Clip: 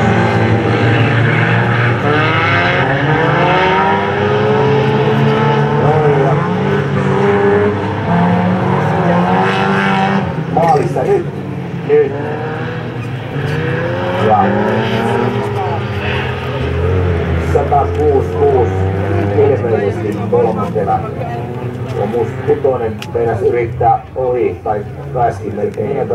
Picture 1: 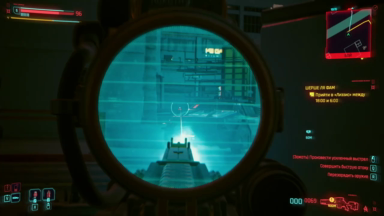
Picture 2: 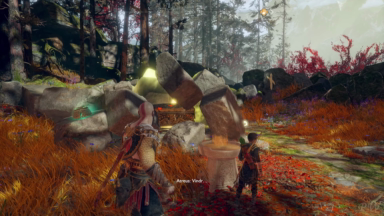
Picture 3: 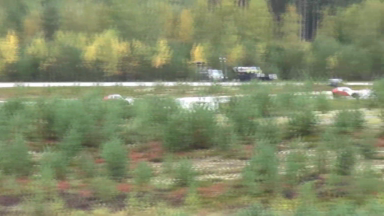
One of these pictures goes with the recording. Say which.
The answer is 3